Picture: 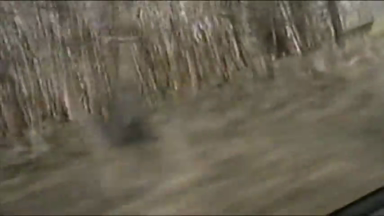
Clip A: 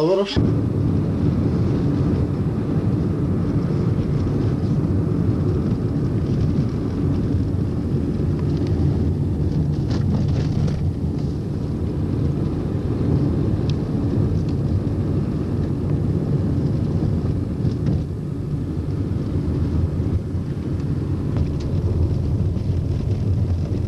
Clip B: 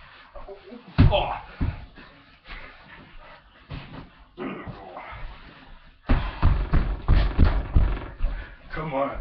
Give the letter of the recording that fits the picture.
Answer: A